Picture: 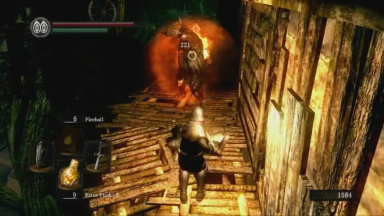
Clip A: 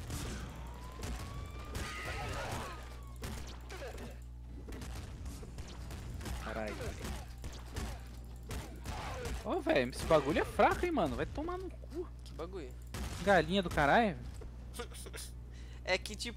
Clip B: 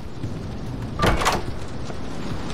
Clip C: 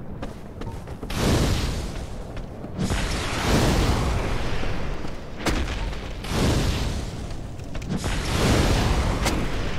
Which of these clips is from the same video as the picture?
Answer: C